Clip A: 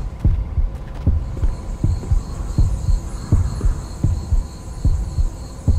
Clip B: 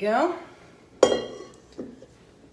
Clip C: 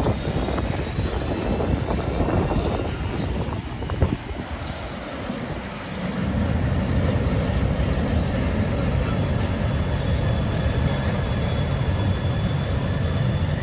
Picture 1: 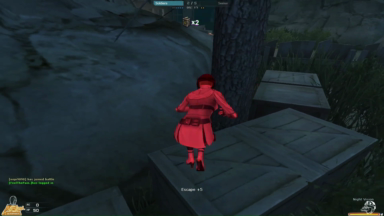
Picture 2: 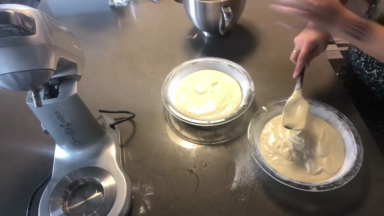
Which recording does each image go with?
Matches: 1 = A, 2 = B